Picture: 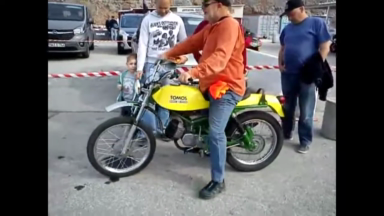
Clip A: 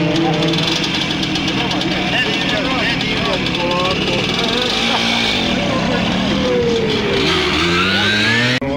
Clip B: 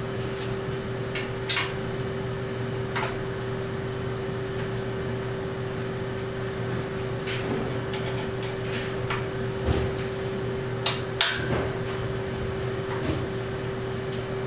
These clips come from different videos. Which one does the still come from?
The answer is A